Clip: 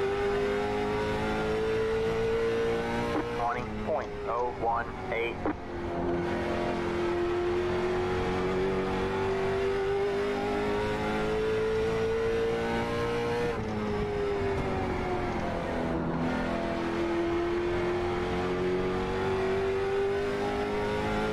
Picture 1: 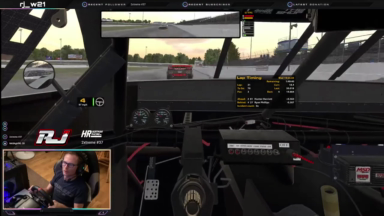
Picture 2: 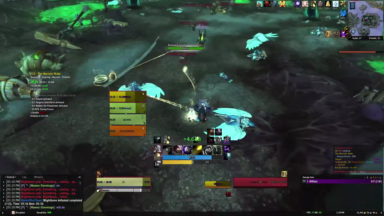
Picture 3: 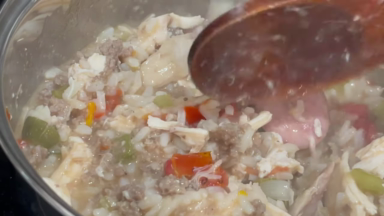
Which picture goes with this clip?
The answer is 1